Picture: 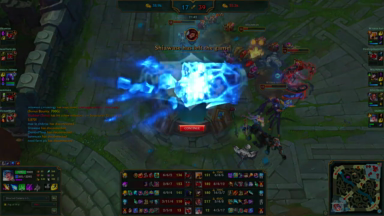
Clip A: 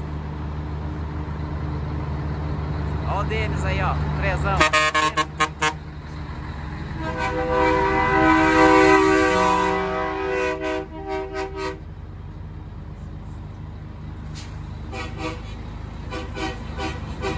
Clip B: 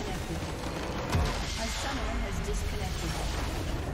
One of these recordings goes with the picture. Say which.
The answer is B